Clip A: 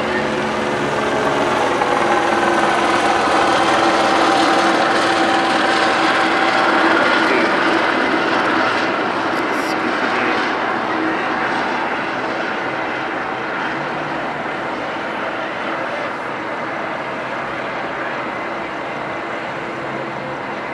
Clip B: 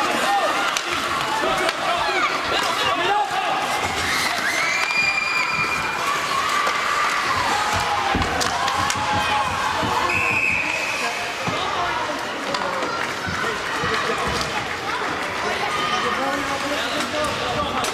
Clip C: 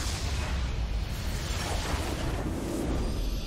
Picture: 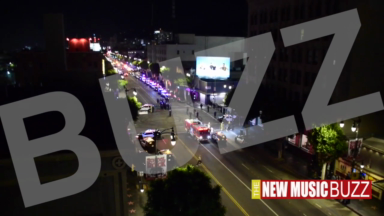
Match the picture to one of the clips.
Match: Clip A